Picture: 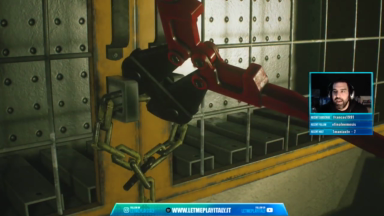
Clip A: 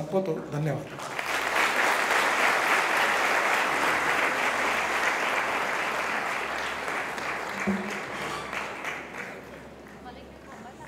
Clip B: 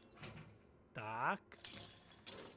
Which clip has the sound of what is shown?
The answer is B